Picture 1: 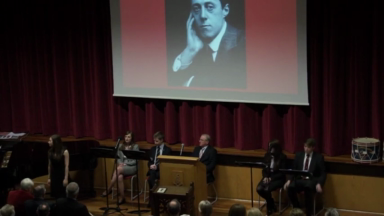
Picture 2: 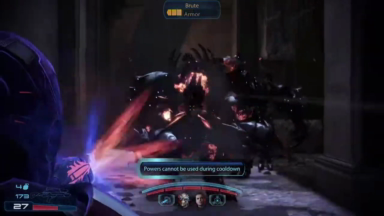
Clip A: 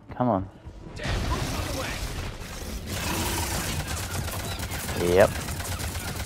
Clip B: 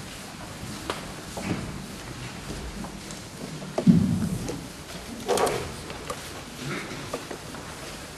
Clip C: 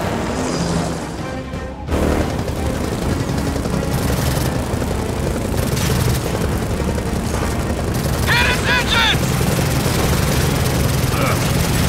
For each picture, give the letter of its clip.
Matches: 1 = B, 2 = A